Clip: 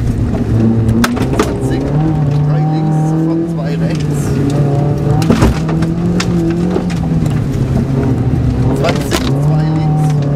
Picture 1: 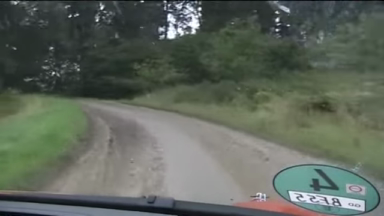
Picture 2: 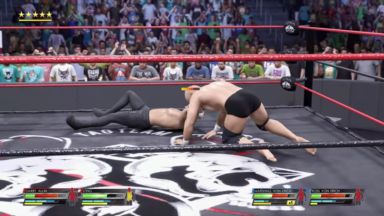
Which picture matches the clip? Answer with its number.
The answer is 1